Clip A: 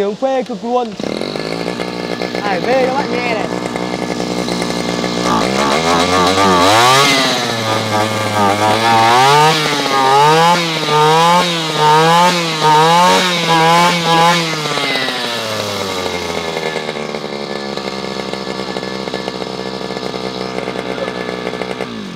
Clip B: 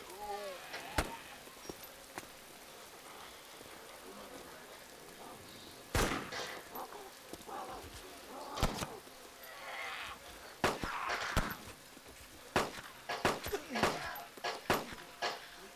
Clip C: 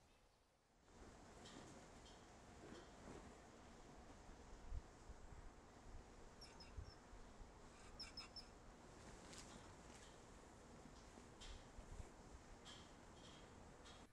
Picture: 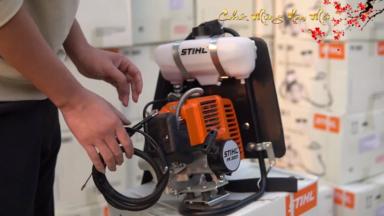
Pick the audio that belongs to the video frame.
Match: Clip A